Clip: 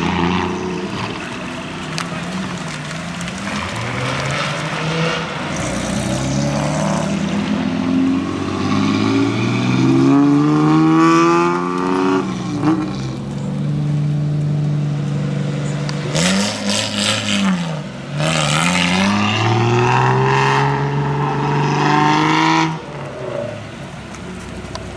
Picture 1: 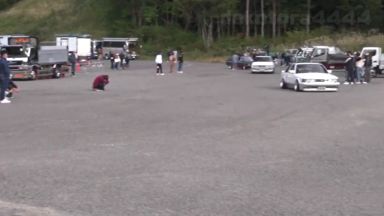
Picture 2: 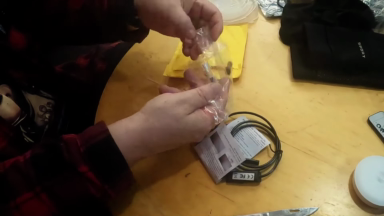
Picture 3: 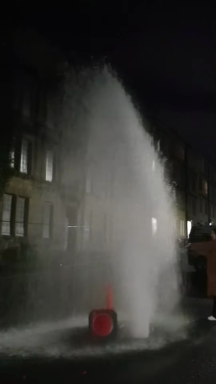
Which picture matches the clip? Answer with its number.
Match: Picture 1